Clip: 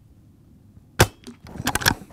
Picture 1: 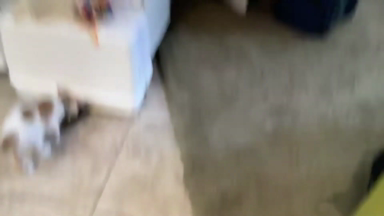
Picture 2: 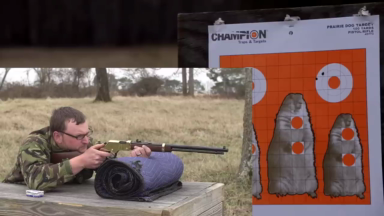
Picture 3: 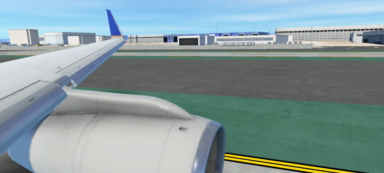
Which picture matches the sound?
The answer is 2